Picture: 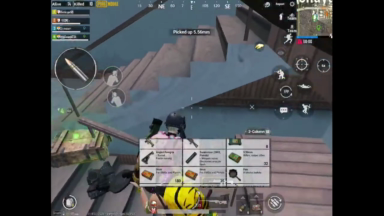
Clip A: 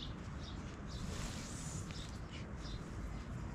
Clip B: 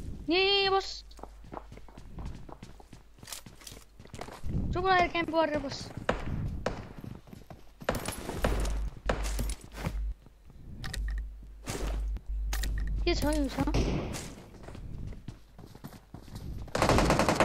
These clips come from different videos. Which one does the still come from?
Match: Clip B